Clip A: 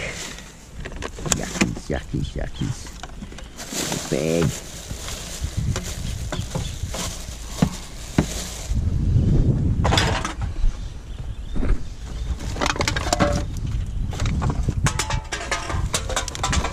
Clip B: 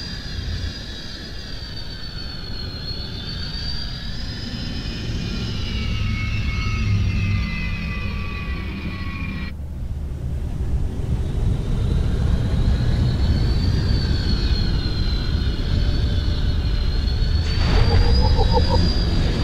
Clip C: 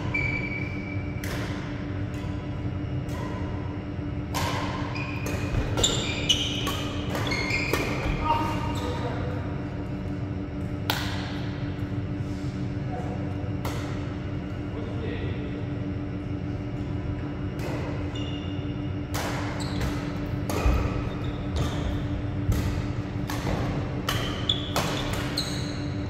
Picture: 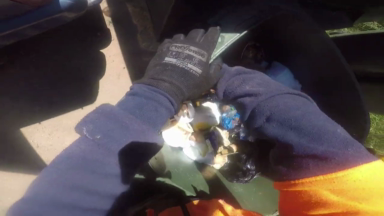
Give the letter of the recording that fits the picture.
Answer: A